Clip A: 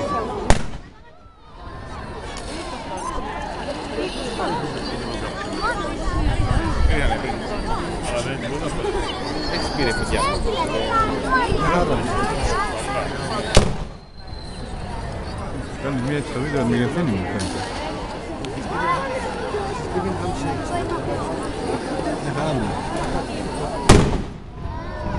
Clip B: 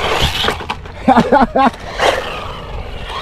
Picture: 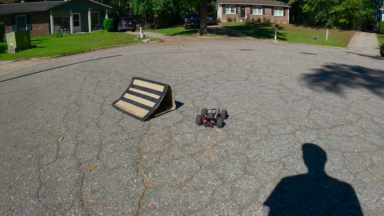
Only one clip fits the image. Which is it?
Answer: B